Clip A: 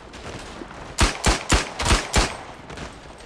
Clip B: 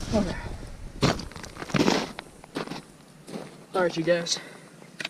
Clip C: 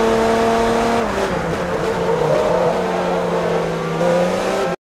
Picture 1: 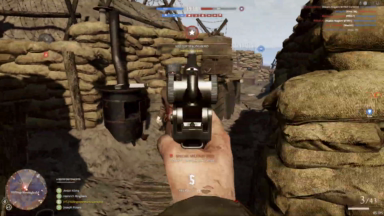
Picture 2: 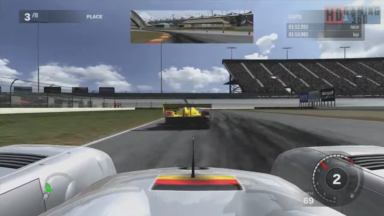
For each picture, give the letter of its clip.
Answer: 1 A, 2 C